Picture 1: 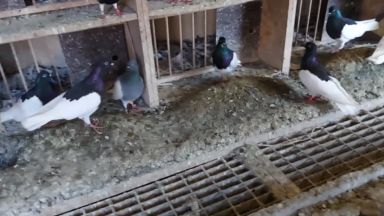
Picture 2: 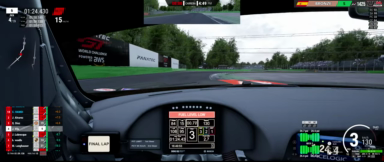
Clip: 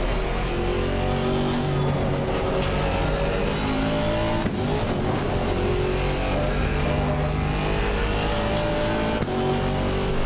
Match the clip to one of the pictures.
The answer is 2